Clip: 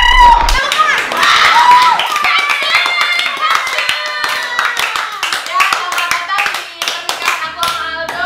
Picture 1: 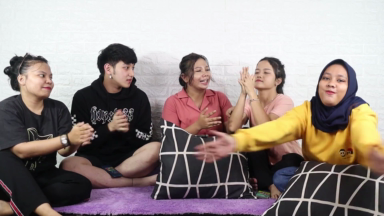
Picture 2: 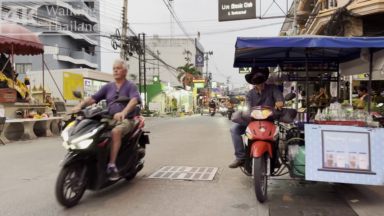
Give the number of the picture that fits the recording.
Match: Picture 1